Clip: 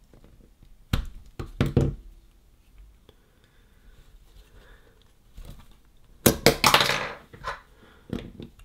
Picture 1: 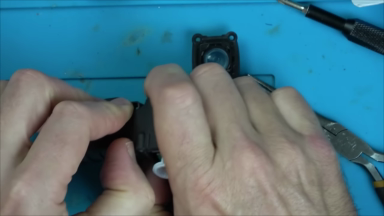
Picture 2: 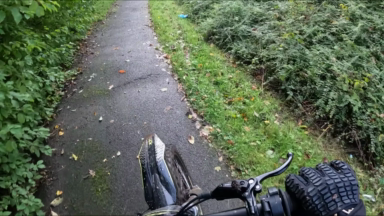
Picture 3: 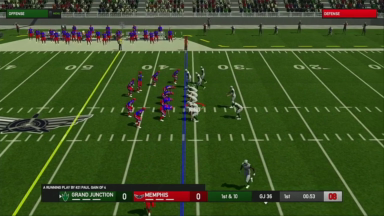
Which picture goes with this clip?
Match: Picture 1